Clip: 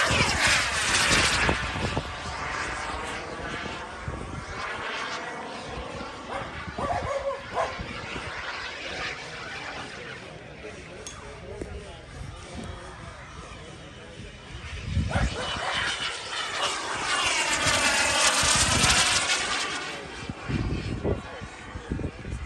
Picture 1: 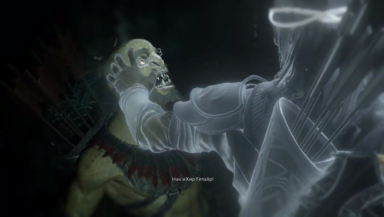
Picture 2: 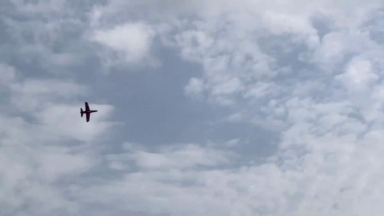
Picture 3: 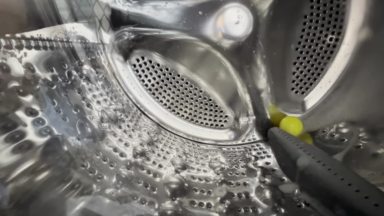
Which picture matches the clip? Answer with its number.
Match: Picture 2